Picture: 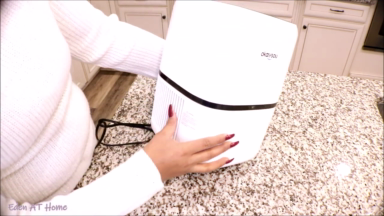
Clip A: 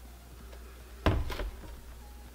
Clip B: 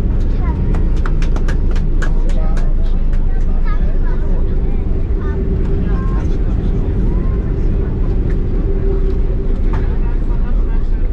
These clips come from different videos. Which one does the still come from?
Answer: A